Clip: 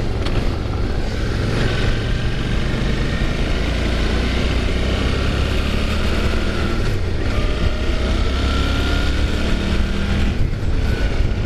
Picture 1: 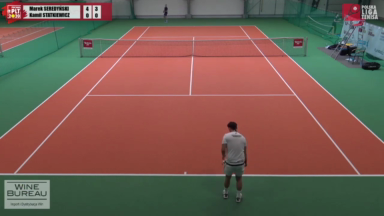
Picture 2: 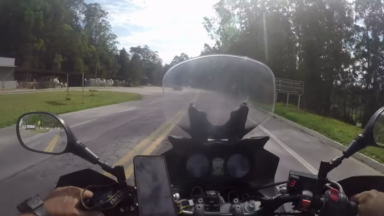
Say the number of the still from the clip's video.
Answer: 2